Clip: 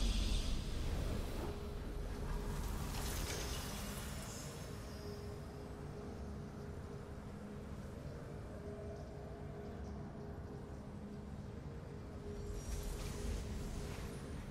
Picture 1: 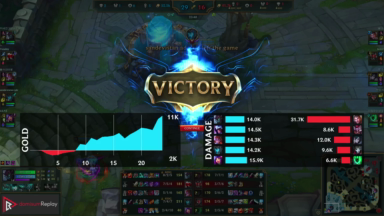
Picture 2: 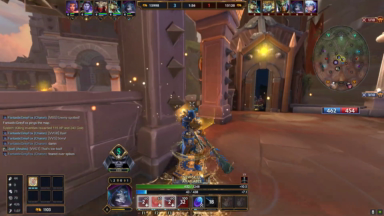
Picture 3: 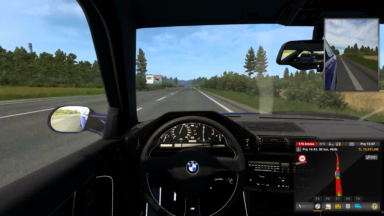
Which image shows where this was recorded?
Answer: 1